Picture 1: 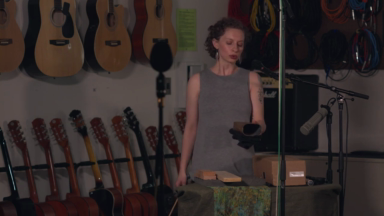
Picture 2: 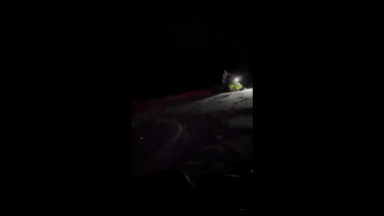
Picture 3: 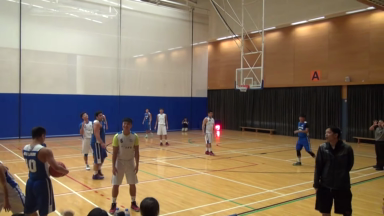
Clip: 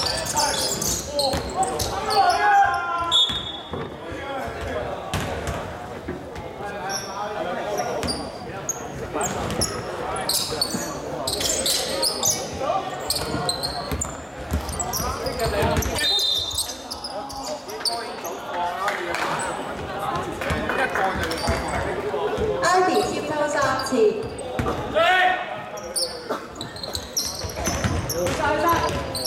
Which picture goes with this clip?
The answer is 3